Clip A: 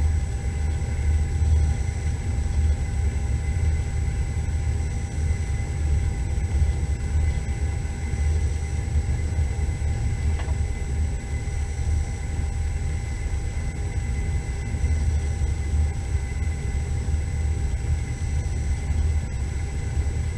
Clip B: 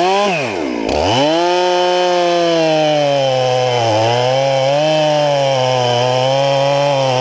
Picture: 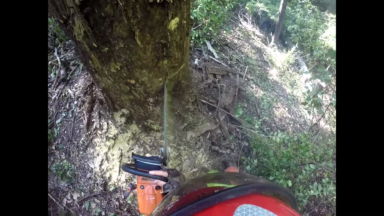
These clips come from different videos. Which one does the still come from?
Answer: B